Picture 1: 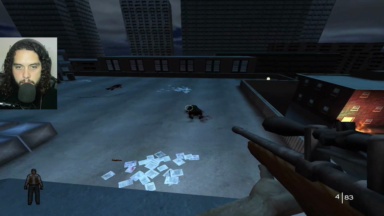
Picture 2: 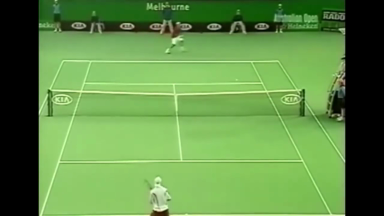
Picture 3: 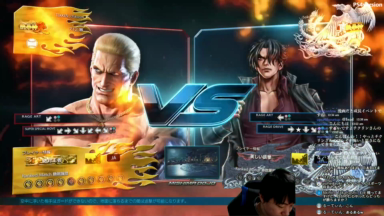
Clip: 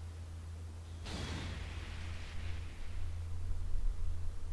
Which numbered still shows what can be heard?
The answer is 3